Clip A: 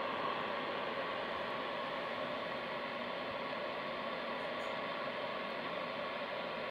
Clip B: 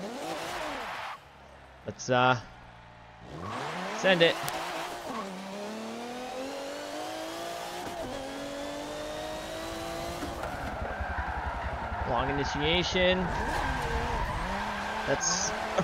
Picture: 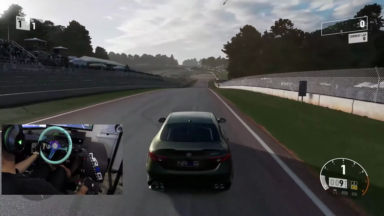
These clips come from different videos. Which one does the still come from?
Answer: B